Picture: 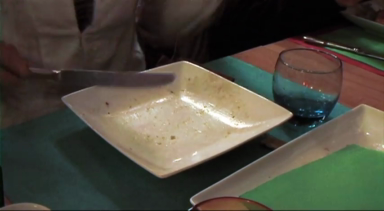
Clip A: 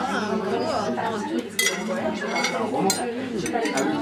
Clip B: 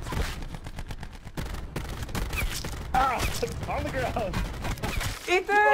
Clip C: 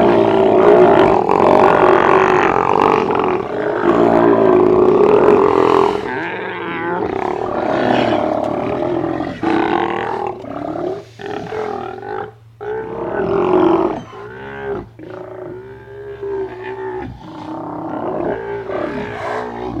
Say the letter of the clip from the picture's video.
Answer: A